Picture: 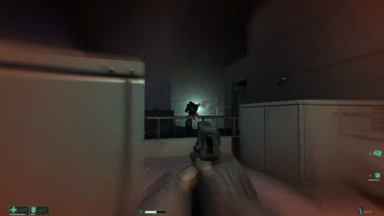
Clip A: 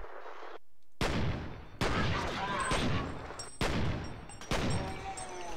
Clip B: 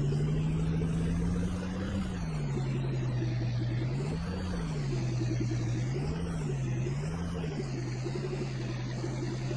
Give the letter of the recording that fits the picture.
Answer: A